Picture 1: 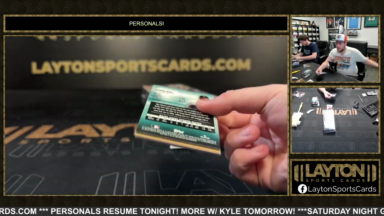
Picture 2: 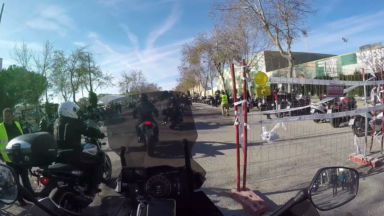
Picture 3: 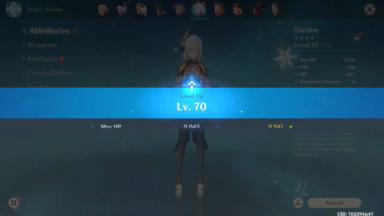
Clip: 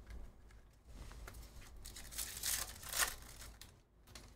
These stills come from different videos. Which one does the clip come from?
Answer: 1